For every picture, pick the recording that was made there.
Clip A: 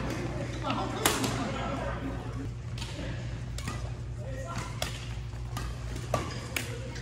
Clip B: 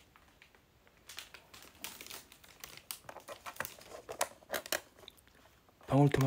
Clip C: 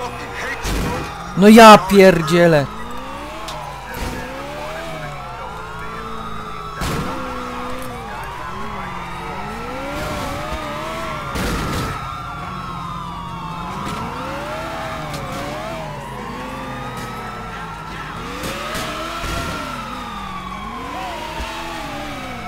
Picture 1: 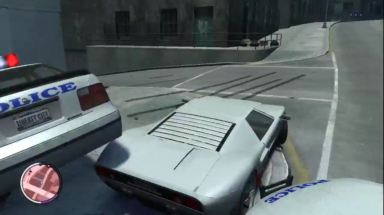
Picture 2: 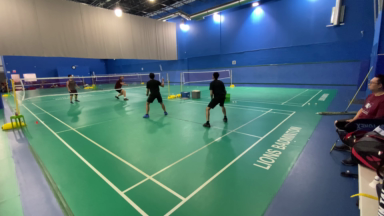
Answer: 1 C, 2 A